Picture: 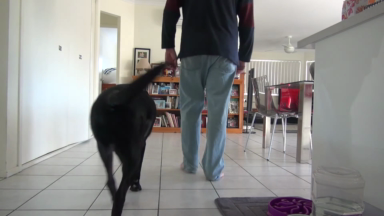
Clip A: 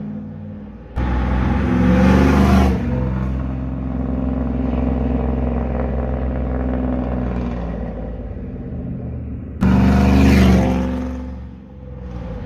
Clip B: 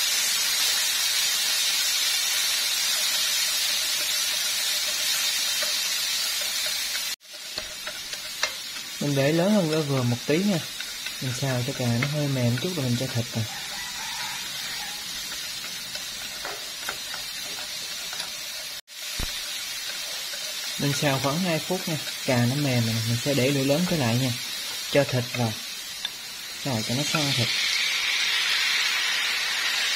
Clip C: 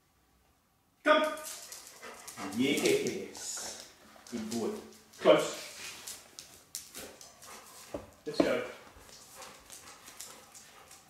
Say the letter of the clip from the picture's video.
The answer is C